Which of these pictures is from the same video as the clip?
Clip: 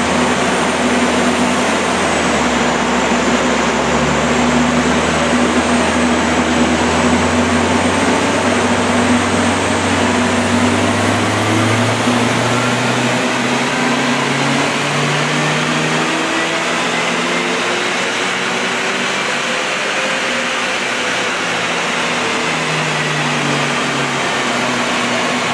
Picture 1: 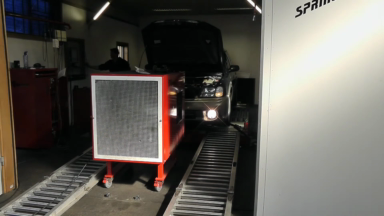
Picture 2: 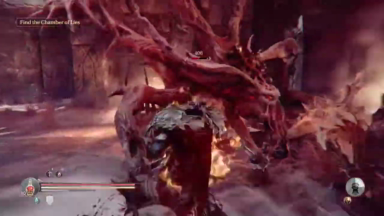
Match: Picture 1